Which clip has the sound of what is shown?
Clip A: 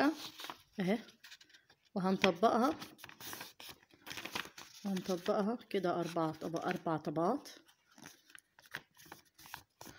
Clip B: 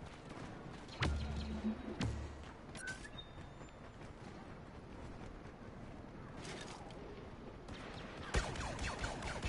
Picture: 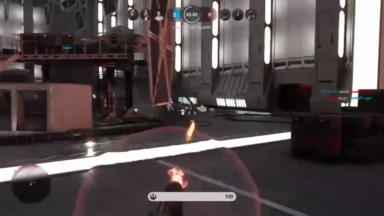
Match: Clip B